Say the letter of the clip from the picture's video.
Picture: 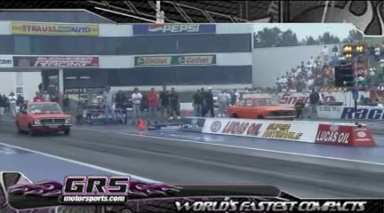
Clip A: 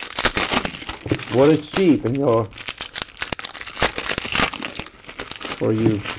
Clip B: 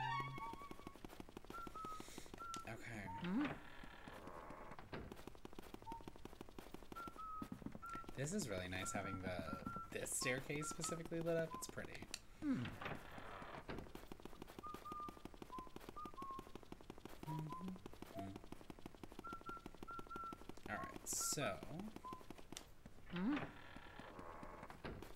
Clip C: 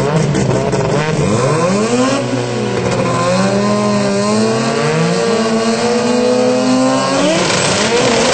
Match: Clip C